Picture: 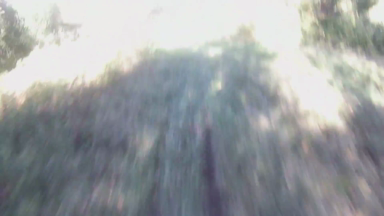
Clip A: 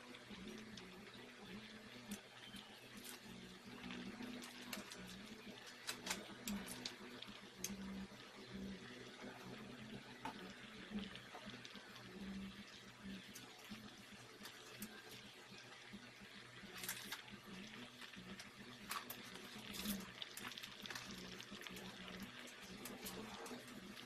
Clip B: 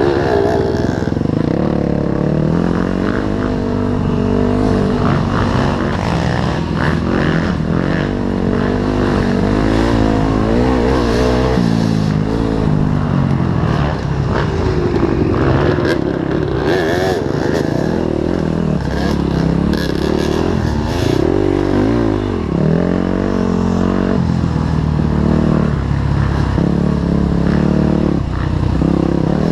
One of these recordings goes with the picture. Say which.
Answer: B